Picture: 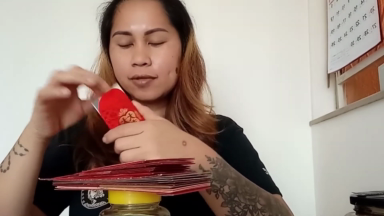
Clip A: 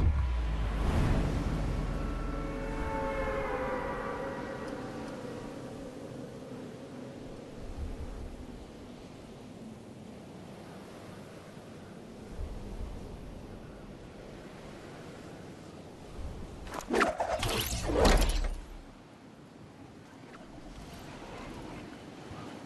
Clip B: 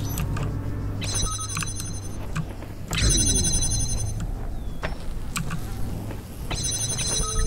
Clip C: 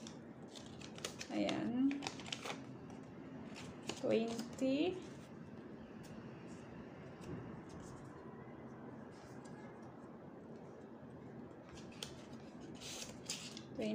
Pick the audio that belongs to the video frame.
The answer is C